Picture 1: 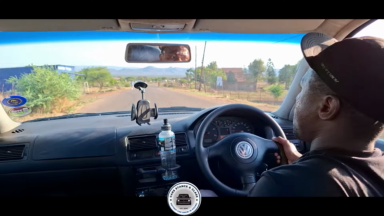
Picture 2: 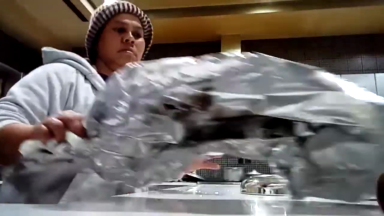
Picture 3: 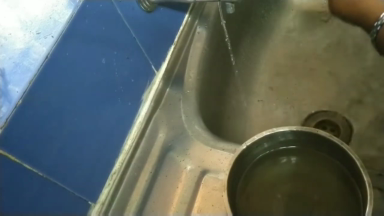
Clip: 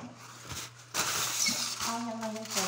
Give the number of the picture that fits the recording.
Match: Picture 2